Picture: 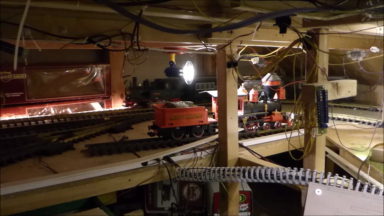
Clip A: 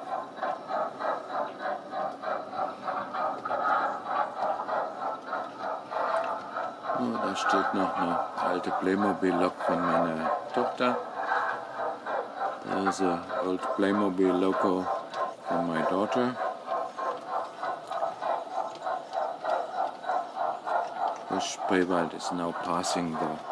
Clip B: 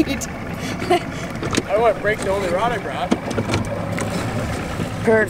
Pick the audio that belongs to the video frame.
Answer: A